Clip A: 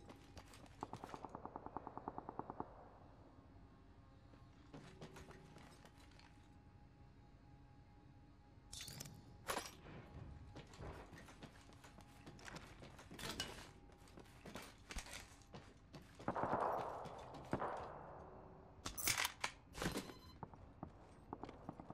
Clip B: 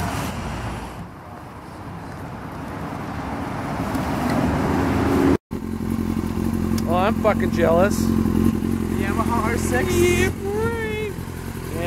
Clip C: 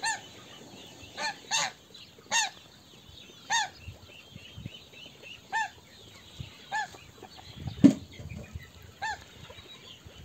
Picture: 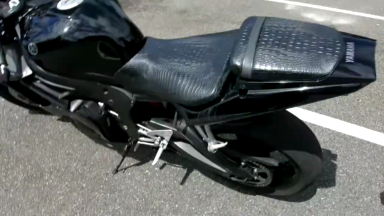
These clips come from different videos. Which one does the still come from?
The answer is B